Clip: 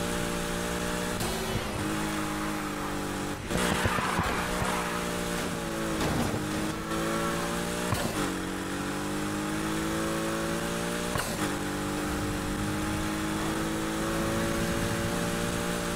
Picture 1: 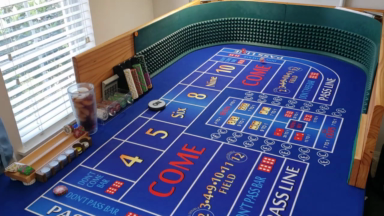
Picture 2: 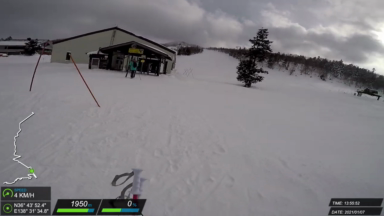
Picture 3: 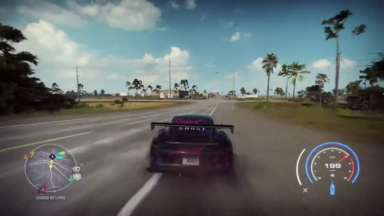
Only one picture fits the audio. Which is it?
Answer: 3